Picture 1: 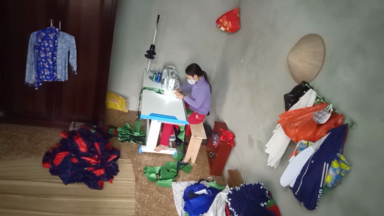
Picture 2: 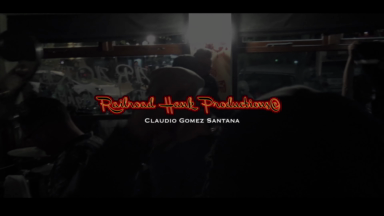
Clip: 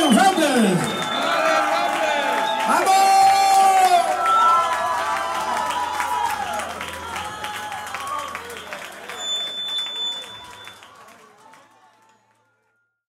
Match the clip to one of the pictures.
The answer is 2